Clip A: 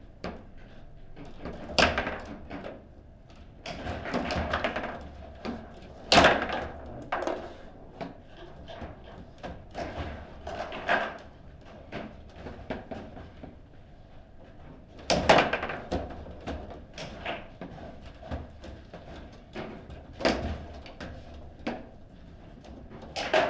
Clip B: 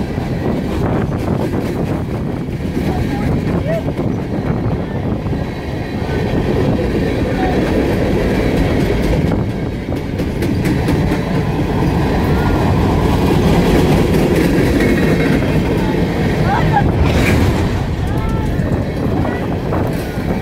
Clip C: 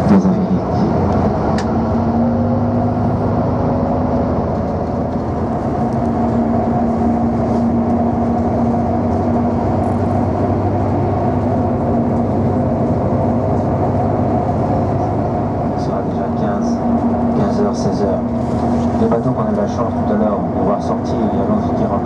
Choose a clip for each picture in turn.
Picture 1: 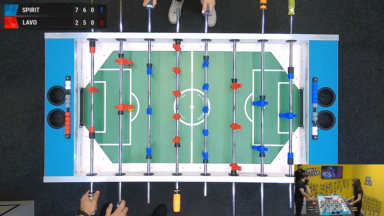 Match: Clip A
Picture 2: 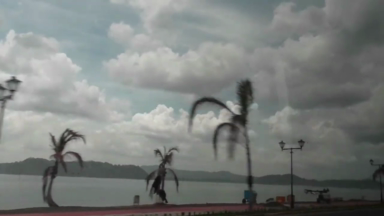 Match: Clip C